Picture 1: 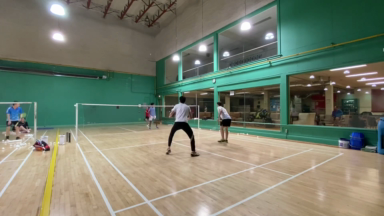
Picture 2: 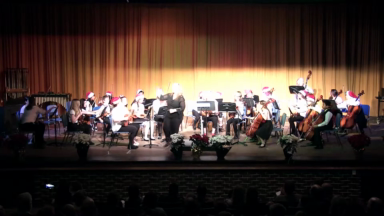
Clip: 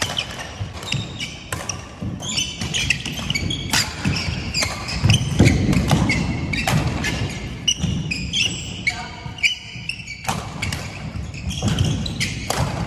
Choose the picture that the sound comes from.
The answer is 1